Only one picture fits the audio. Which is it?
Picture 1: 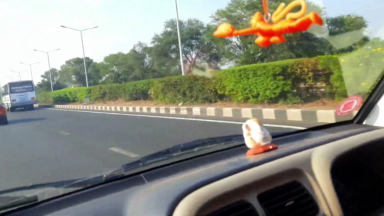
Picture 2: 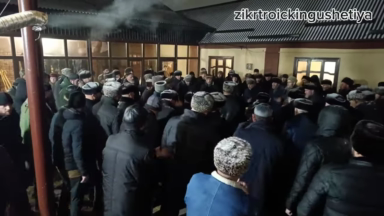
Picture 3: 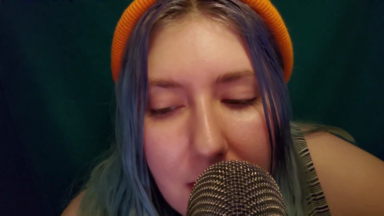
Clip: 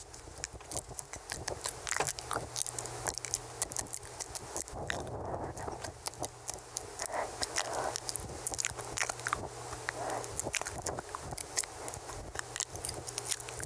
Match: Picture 3